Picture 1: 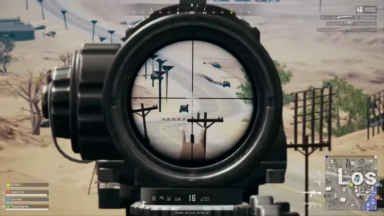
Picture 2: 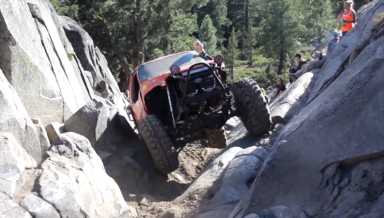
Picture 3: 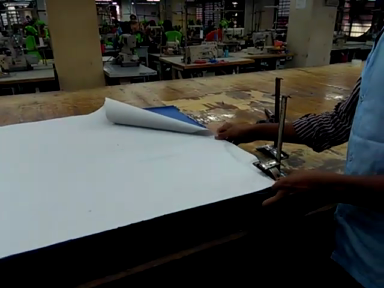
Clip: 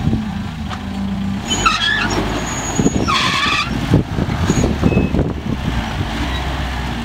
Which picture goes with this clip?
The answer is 2